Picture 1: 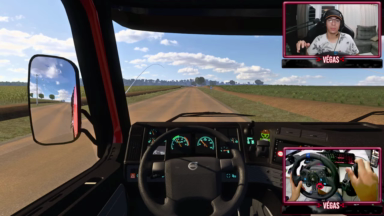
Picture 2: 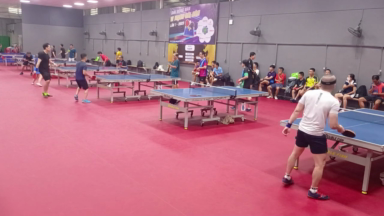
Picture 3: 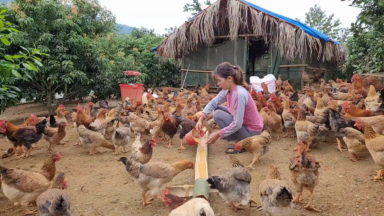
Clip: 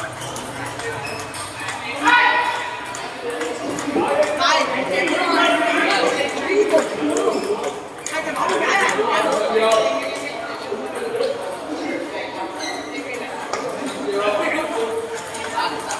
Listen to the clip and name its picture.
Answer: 2